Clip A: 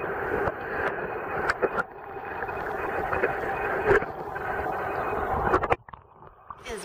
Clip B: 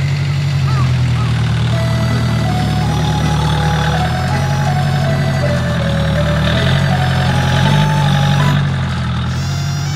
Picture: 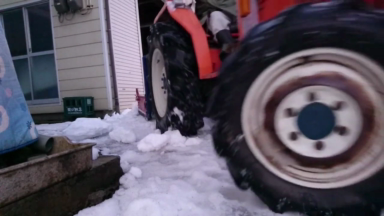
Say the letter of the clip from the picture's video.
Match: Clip B